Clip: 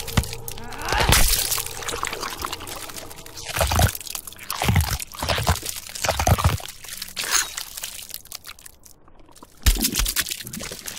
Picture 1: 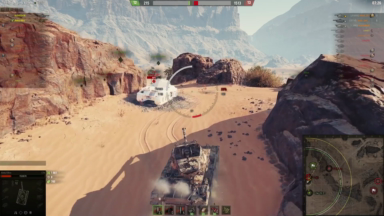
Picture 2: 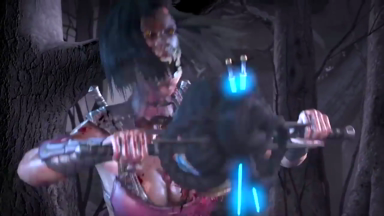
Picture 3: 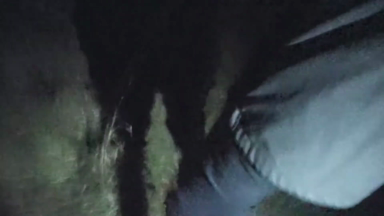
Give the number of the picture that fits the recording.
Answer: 2